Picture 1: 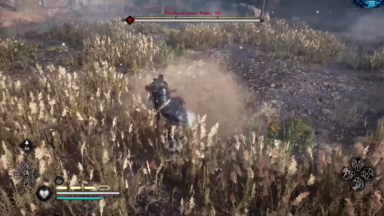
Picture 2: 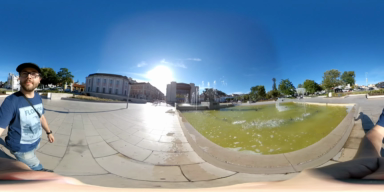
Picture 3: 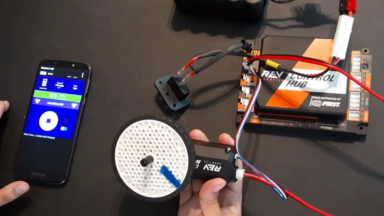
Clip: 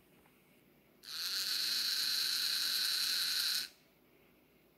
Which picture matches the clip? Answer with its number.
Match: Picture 3